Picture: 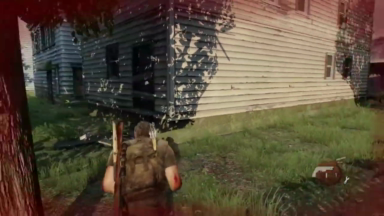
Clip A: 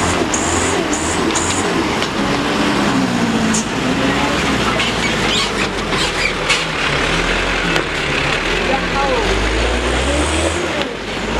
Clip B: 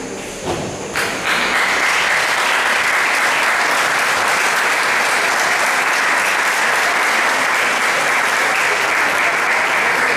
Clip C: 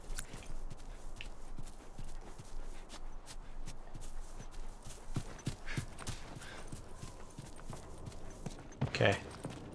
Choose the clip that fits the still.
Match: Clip C